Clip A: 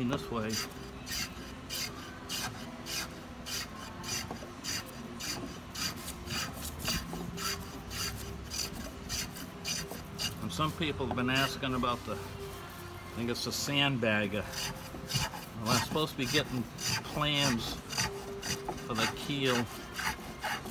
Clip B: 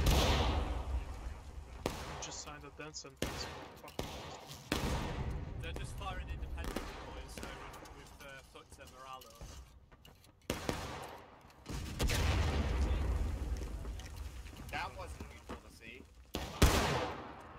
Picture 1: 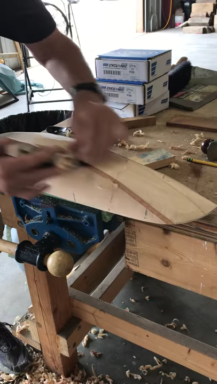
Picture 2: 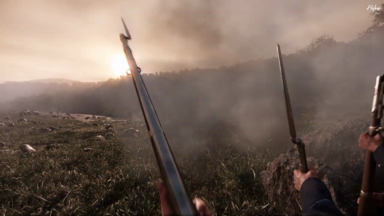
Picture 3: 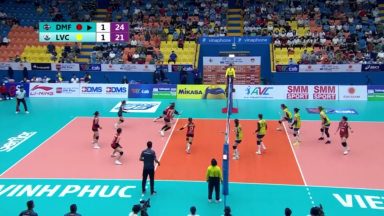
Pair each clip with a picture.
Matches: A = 1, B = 2